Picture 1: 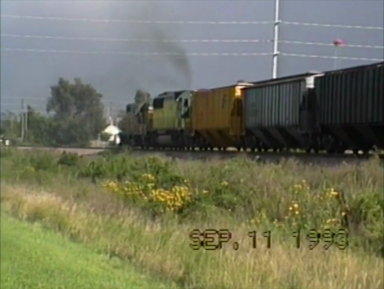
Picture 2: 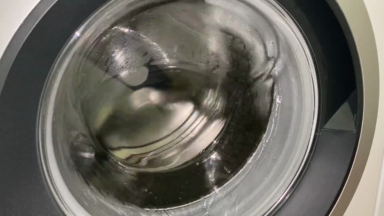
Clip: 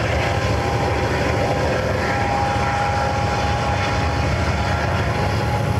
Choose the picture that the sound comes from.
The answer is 1